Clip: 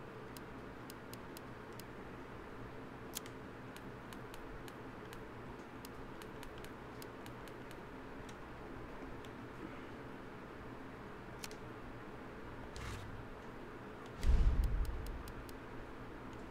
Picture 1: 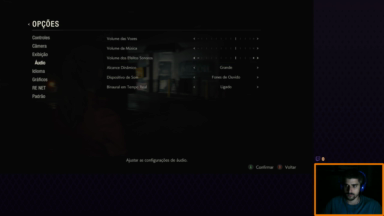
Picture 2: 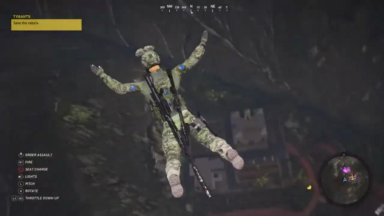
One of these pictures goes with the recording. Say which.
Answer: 1